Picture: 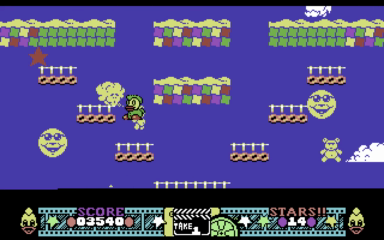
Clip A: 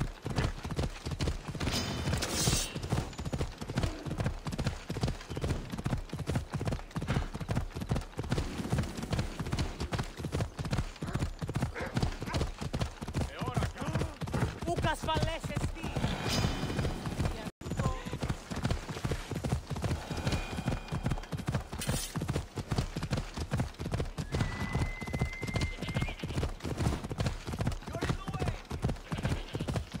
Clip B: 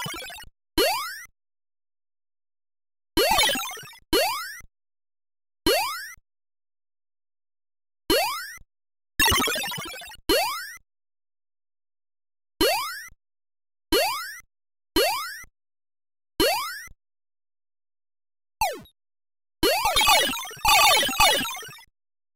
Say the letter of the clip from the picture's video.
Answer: B